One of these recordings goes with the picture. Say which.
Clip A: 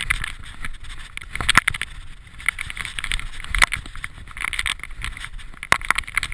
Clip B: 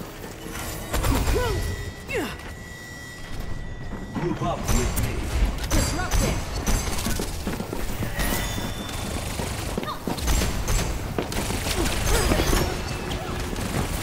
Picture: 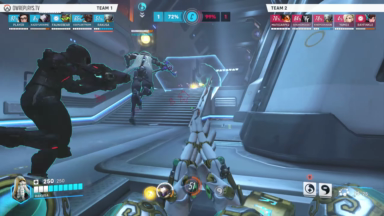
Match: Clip B